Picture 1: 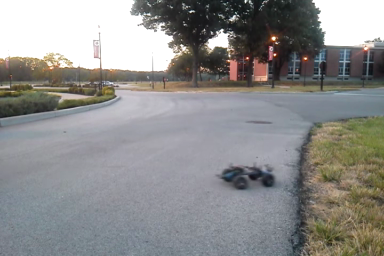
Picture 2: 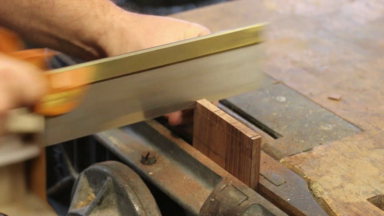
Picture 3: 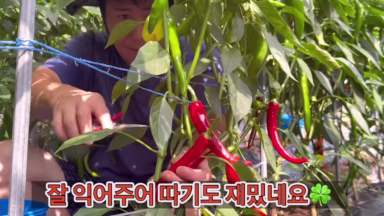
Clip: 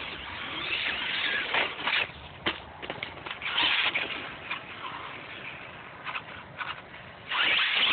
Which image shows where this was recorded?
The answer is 1